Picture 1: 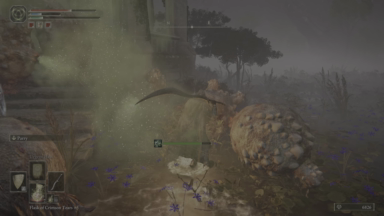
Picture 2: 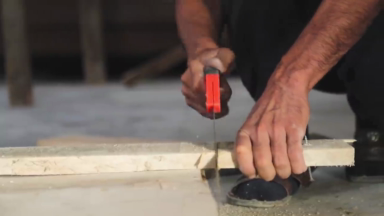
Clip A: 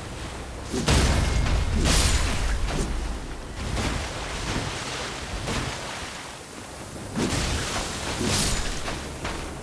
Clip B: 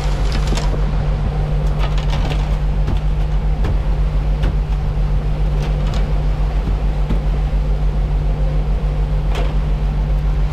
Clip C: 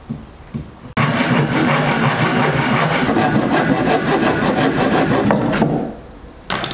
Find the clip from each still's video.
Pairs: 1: A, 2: C